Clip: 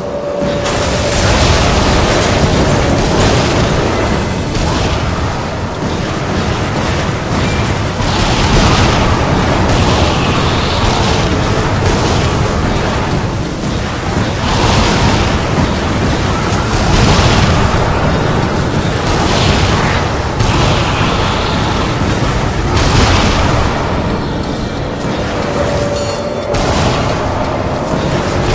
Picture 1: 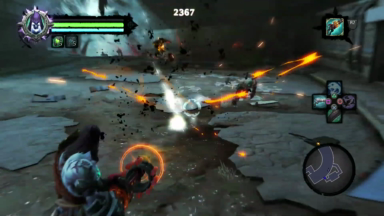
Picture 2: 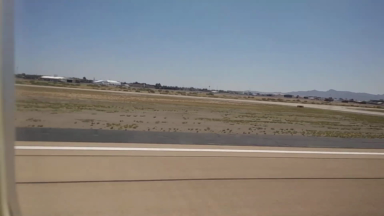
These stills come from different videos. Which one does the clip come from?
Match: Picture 1